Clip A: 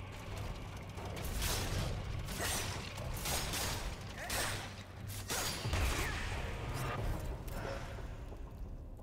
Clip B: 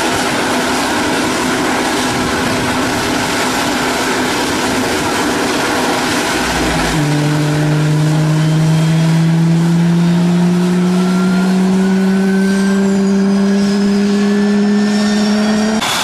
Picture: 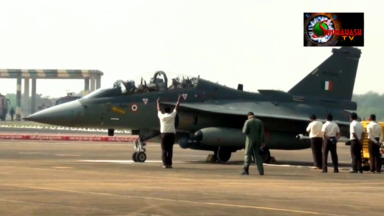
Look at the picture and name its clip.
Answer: B